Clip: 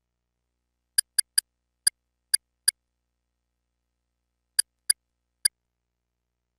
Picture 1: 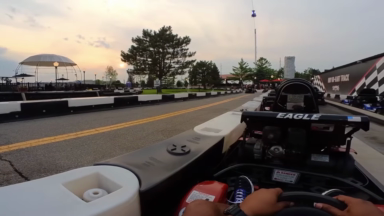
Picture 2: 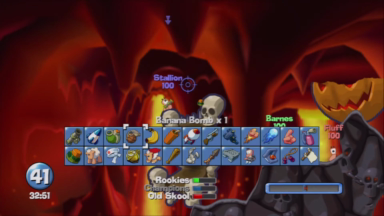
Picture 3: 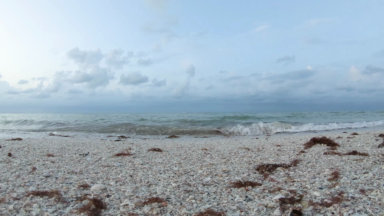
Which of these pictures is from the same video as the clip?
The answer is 2